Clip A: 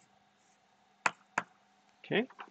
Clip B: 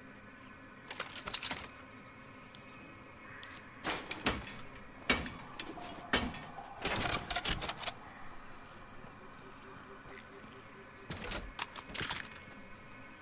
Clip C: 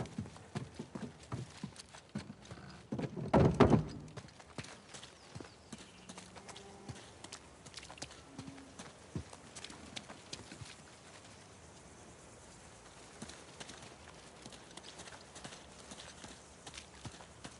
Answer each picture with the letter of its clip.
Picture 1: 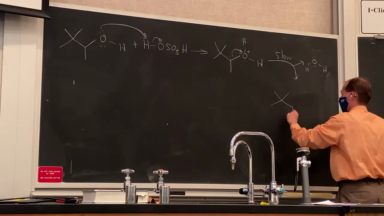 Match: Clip A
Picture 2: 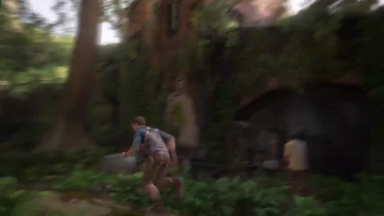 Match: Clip C